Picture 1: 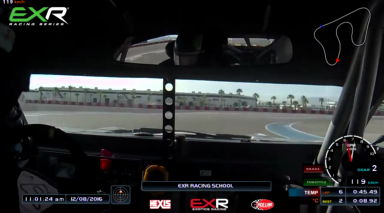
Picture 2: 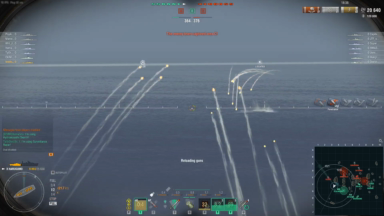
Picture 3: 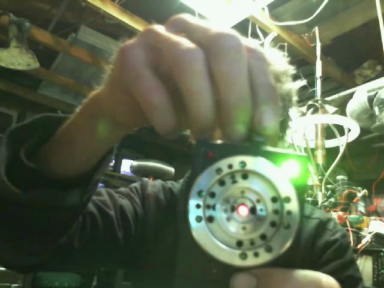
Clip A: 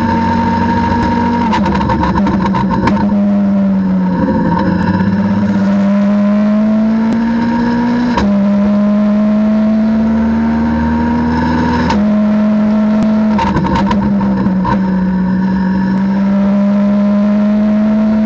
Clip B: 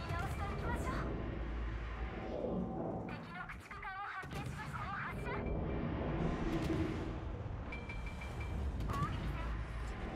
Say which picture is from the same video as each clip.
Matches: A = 1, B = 2